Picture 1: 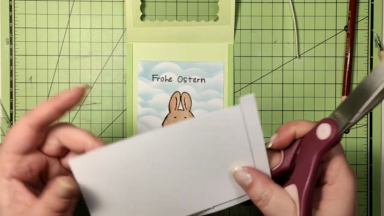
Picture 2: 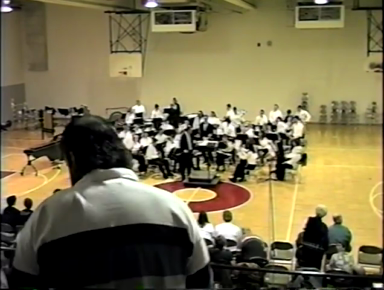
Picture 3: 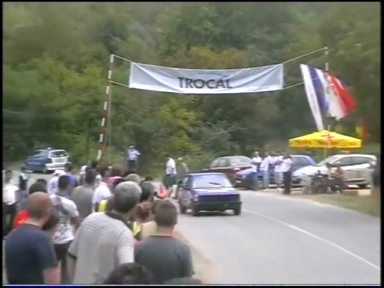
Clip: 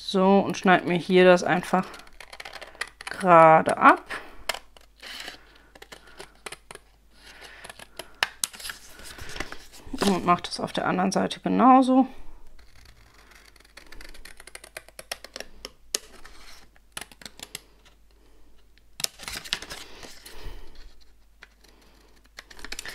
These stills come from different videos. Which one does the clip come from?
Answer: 1